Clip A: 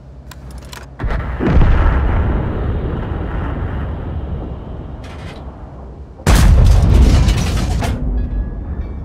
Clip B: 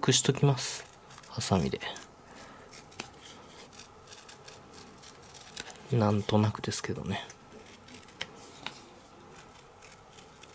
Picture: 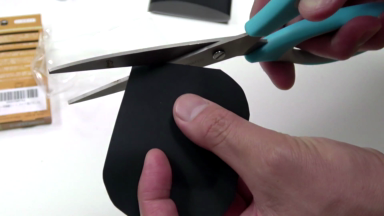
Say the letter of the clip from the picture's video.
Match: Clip B